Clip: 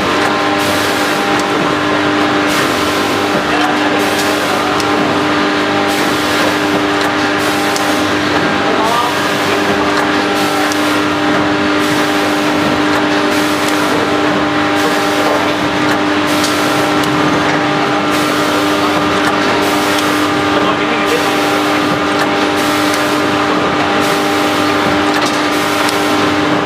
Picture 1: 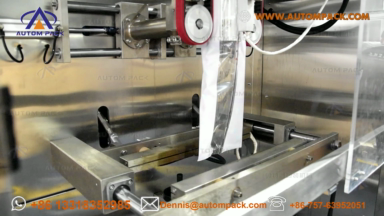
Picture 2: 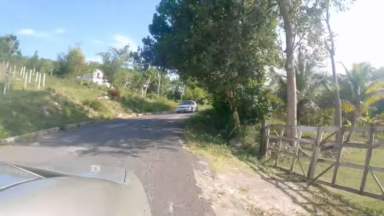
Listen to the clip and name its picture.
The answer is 1